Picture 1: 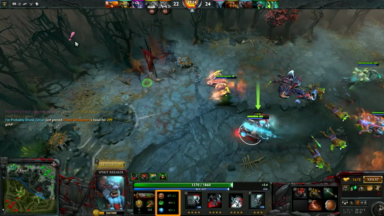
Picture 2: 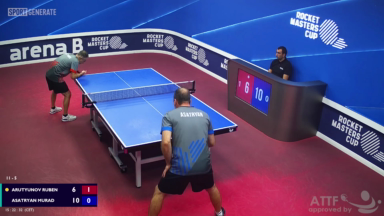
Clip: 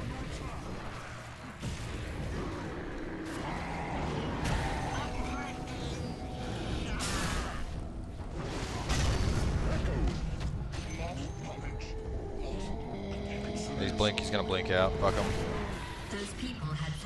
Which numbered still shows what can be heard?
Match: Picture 1